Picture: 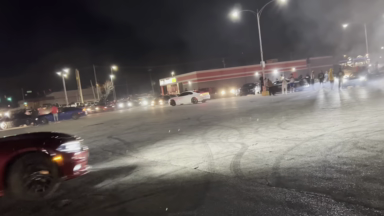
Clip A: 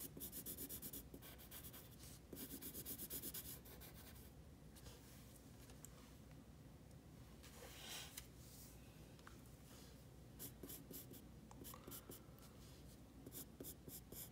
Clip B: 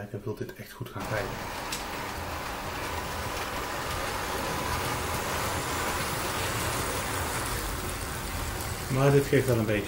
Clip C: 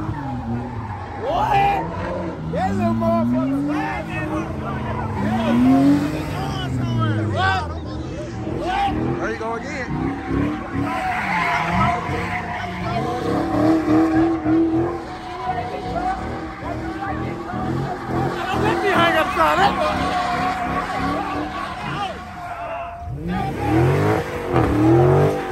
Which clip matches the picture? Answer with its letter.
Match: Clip C